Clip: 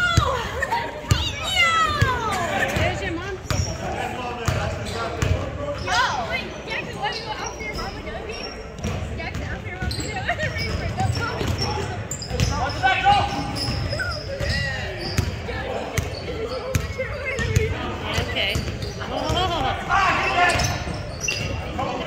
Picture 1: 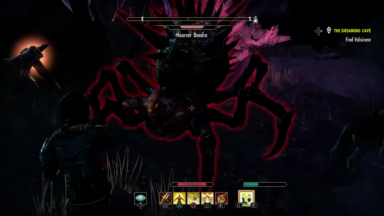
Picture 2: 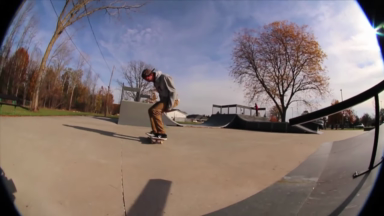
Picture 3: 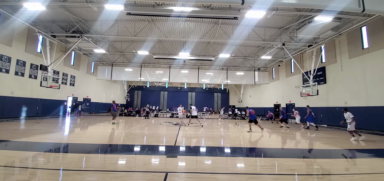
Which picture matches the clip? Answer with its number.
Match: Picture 3